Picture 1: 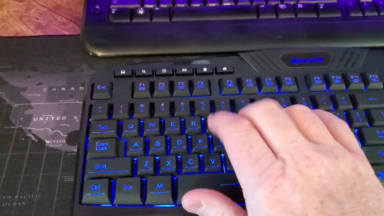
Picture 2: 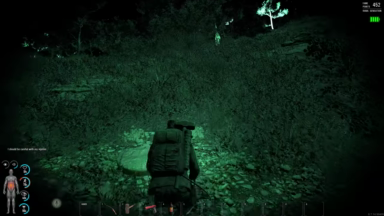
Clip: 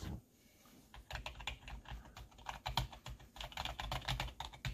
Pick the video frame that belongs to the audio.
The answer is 1